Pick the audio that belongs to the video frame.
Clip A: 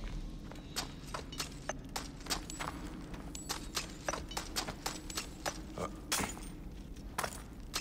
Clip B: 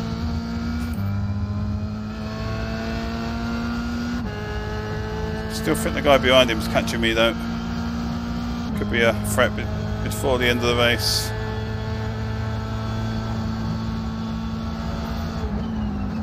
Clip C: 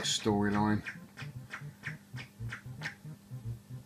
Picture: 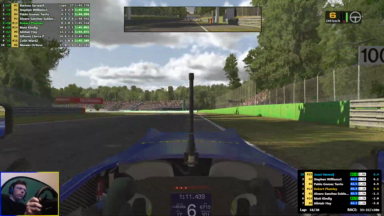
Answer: B